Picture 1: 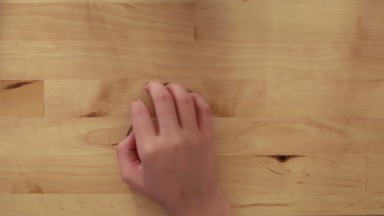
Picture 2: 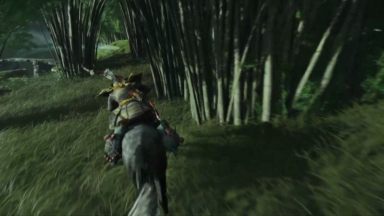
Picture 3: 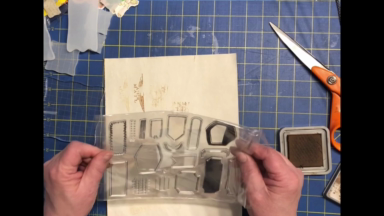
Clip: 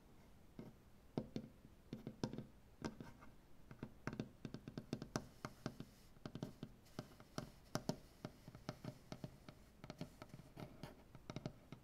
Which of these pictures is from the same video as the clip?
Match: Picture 1